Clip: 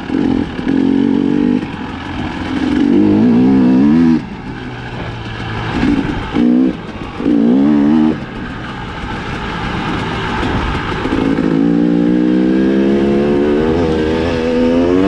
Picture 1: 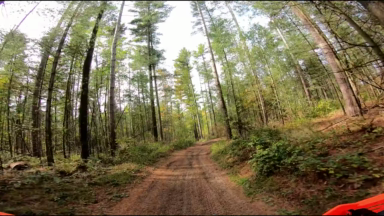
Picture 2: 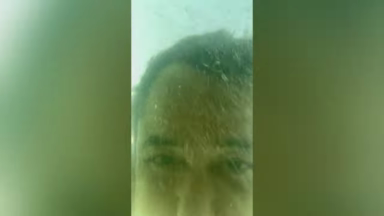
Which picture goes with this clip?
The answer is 1